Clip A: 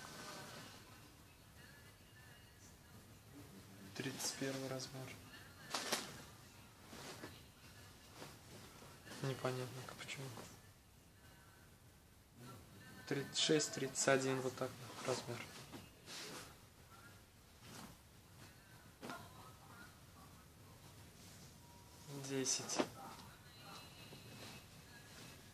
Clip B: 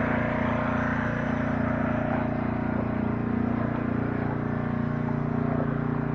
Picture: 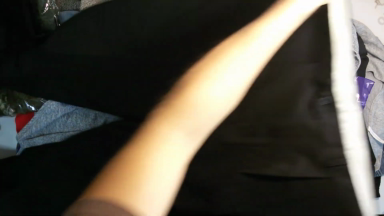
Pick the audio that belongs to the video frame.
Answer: A